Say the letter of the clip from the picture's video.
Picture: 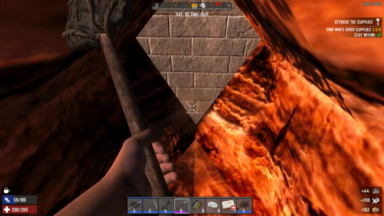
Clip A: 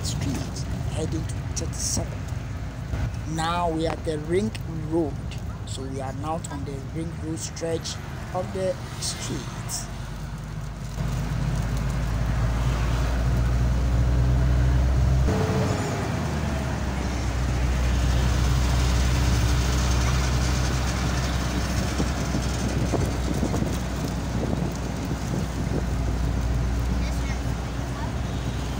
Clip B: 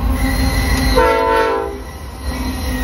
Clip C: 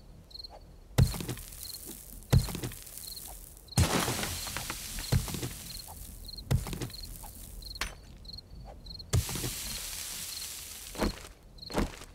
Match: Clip C